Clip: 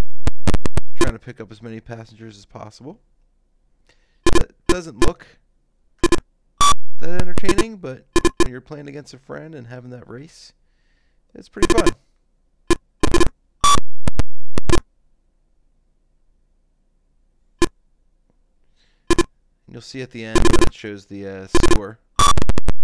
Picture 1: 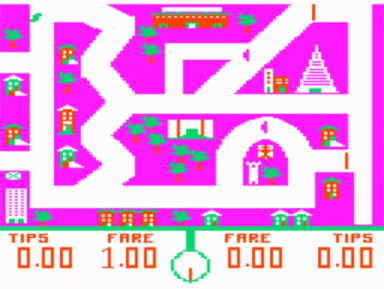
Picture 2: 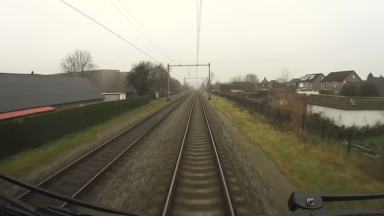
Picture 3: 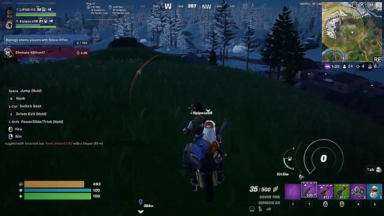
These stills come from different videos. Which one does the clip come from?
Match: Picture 1